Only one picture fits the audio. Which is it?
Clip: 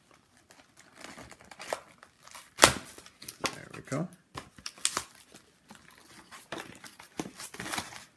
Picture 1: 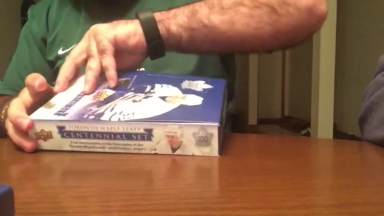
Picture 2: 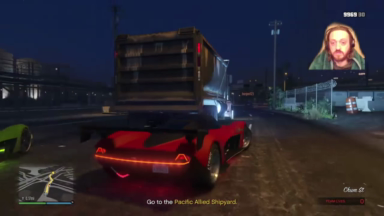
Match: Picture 1